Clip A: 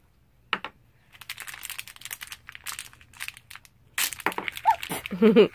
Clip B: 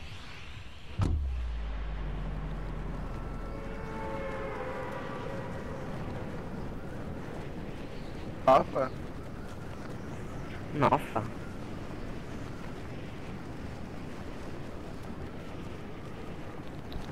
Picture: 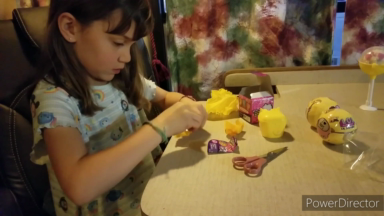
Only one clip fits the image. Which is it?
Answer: A